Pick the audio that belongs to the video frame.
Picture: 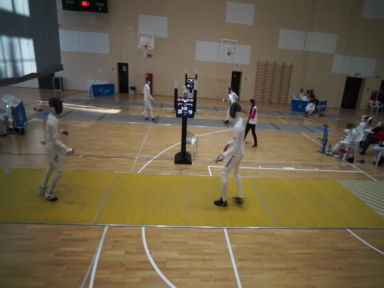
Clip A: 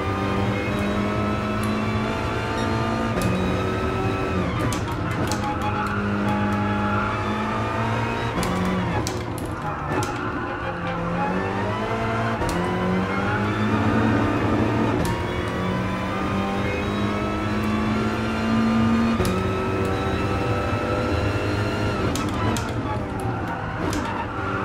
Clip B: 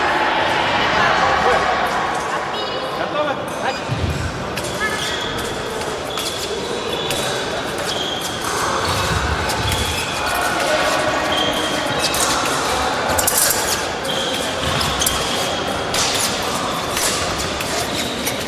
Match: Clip B